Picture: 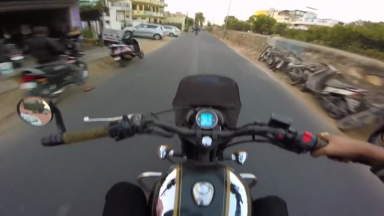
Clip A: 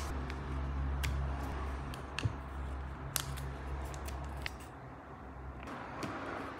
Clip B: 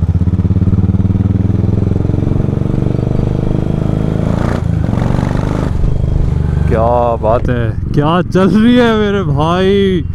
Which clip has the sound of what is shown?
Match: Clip B